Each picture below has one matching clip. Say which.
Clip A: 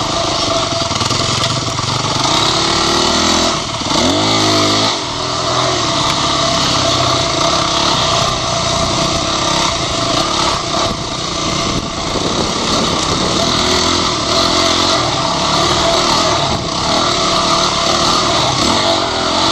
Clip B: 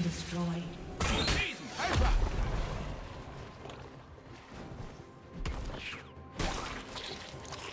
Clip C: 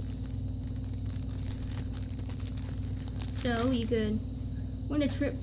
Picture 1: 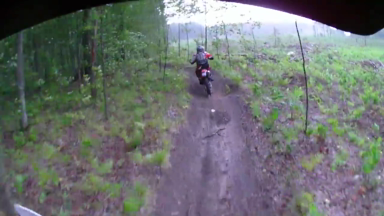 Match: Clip A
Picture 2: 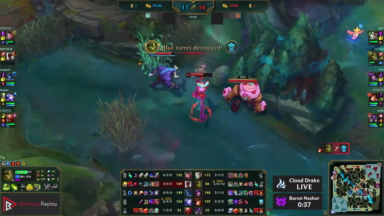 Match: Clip B